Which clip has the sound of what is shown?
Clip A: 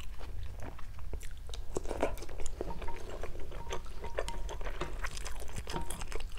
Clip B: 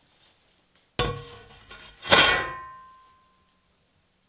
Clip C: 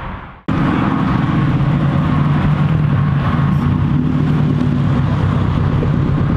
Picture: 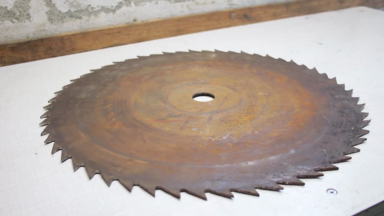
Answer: B